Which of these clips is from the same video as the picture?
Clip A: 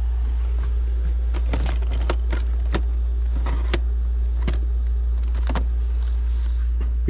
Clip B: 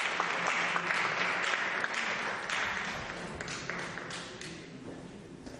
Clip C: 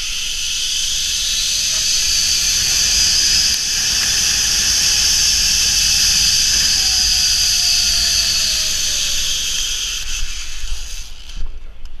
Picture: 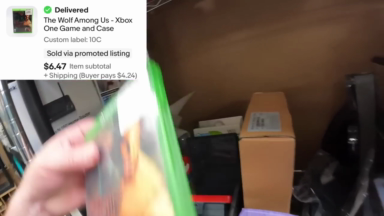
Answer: A